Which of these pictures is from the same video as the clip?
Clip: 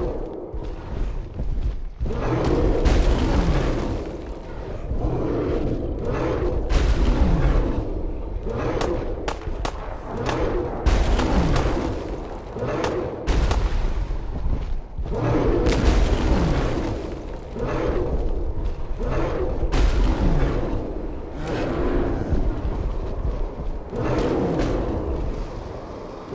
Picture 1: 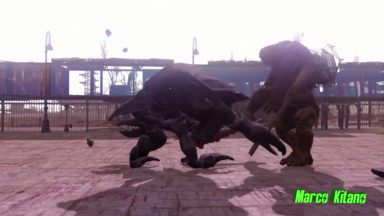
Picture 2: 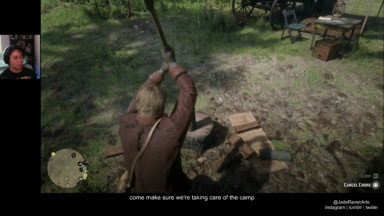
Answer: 1